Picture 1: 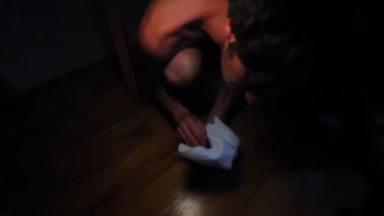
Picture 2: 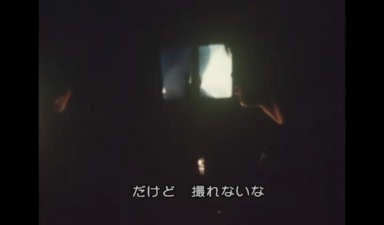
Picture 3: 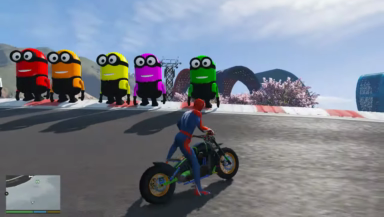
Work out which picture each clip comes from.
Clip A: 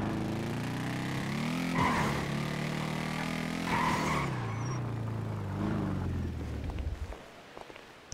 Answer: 3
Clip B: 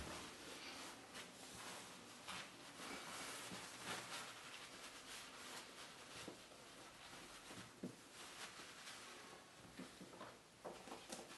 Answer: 1